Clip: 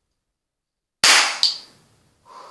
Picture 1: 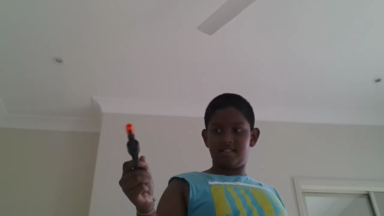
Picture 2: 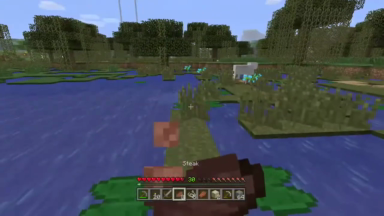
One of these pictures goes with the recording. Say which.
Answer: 1